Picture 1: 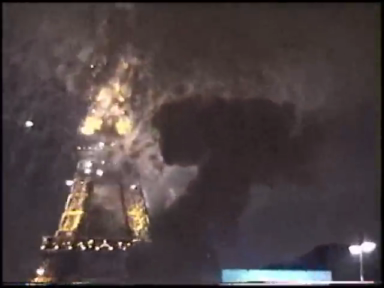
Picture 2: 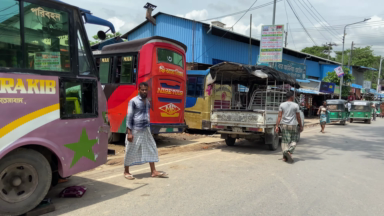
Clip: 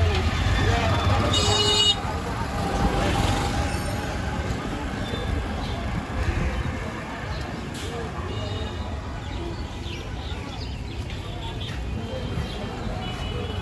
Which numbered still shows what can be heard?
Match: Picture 2